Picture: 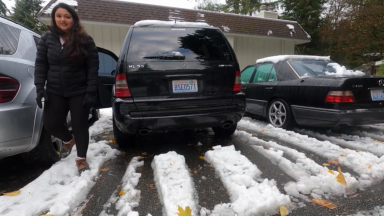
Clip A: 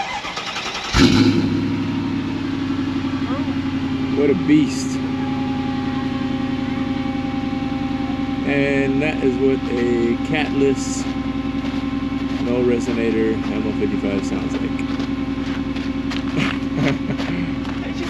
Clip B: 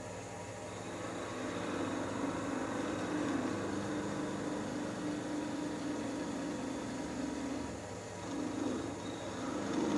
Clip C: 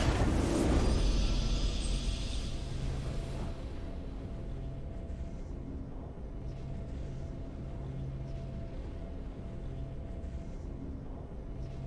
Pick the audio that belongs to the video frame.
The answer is A